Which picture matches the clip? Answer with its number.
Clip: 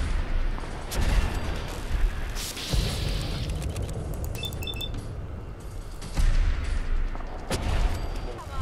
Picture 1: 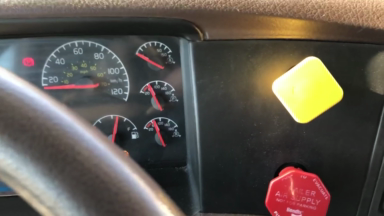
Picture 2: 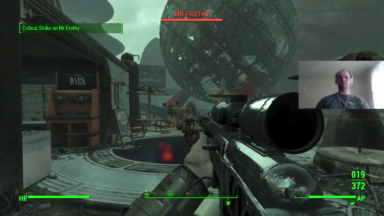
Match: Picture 2